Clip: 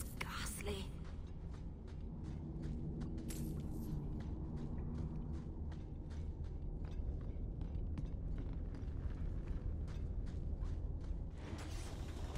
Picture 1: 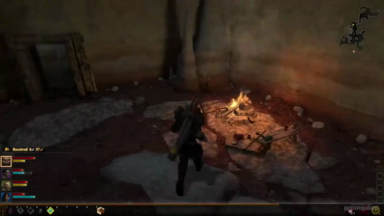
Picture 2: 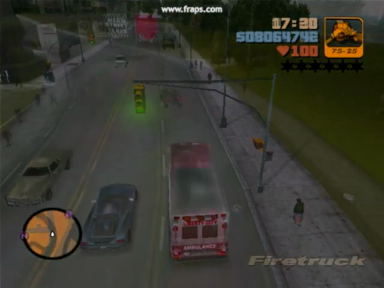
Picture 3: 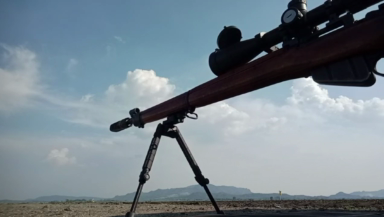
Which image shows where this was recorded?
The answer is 1